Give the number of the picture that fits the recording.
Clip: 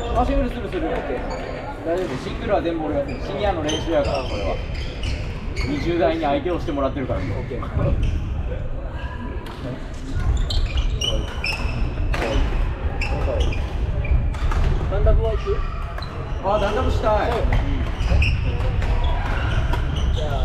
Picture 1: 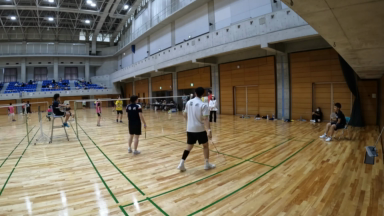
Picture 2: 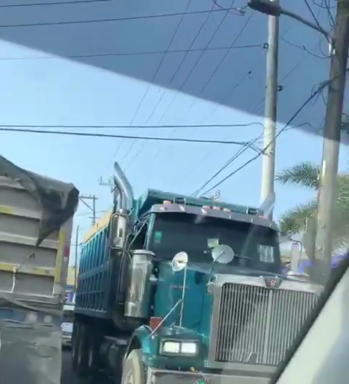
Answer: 1